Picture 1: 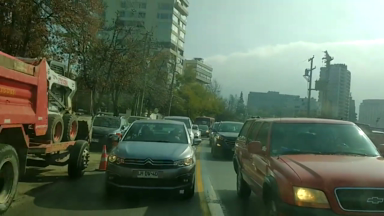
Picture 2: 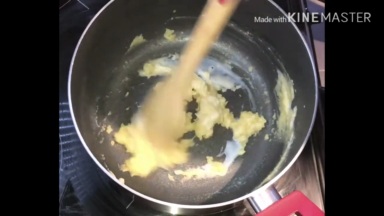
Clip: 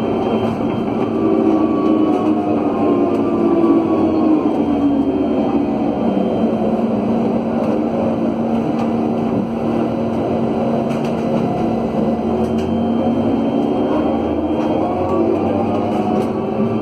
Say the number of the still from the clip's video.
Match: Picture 1